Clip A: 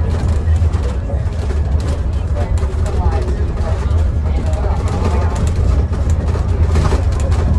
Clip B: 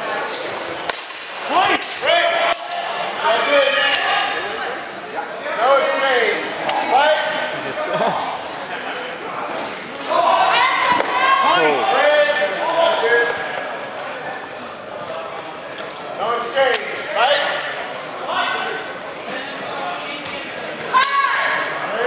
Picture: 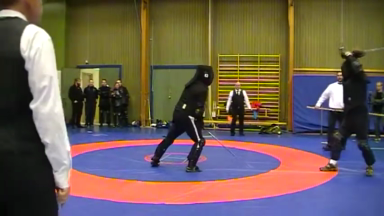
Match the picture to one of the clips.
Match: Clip B